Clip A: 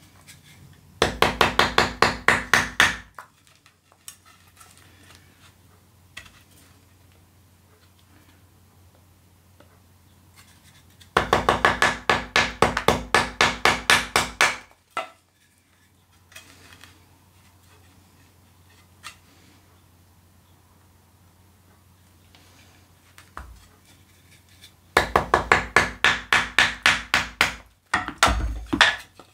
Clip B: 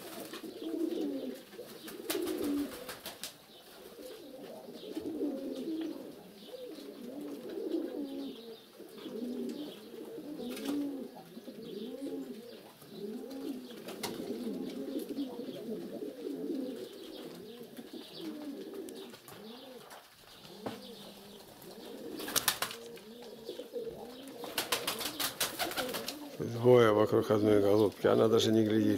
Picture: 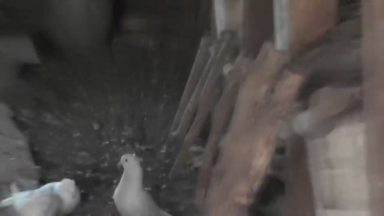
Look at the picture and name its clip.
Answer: B